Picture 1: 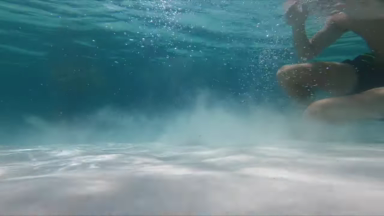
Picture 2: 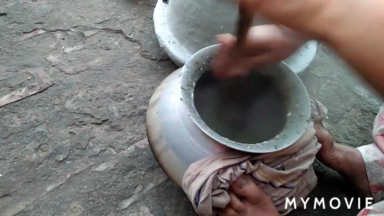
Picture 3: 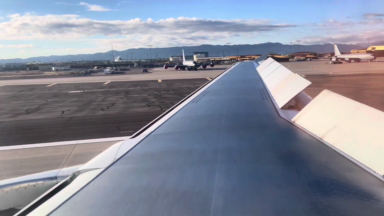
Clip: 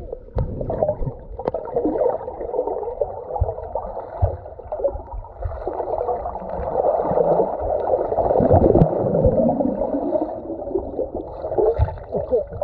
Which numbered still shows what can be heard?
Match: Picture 1